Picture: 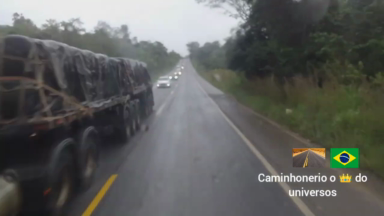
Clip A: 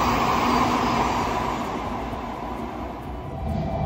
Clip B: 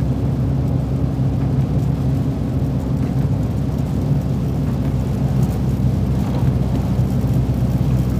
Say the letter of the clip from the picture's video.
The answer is B